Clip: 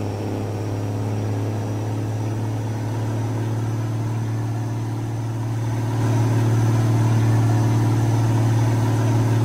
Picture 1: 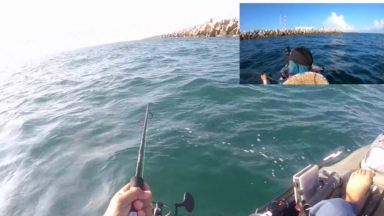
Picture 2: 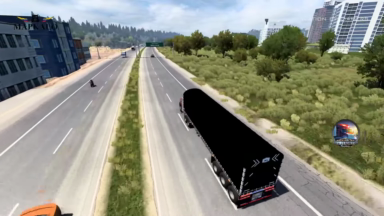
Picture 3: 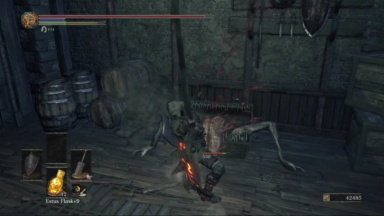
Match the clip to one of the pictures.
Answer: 2